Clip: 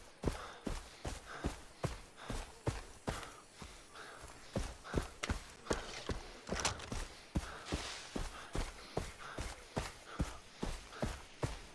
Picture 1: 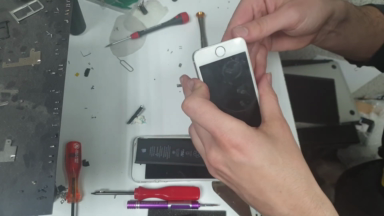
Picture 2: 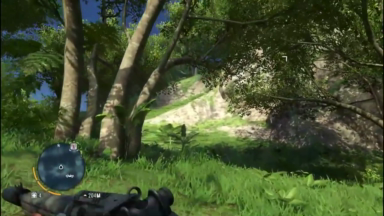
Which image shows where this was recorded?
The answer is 2